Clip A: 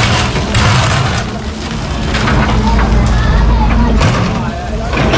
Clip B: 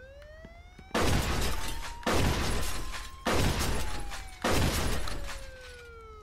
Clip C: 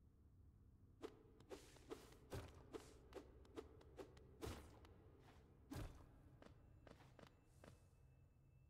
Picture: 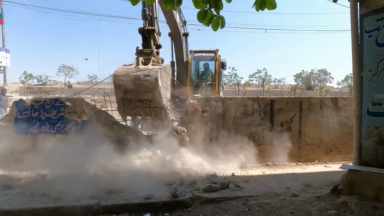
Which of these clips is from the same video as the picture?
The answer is A